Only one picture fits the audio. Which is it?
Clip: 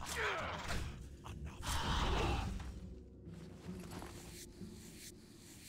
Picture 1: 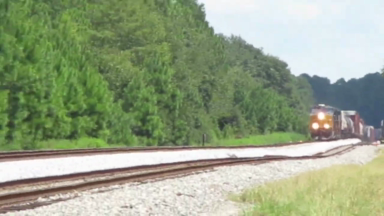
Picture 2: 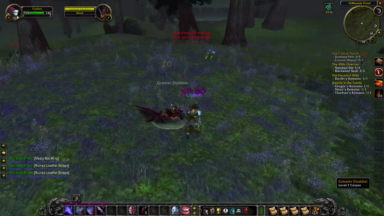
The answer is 2